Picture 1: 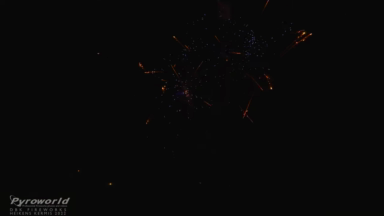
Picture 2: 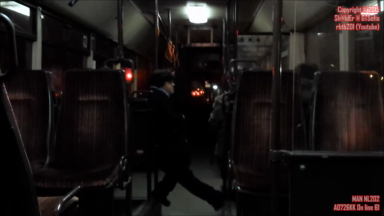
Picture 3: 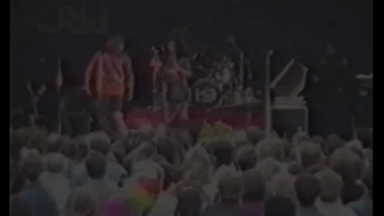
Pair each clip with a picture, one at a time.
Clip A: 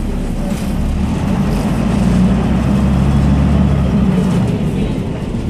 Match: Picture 2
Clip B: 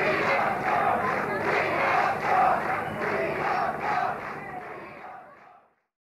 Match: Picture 3